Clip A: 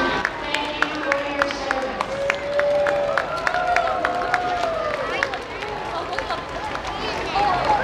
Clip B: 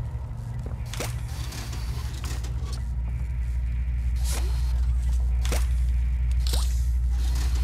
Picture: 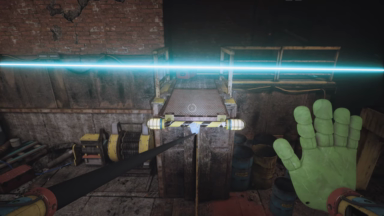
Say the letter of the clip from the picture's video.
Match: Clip B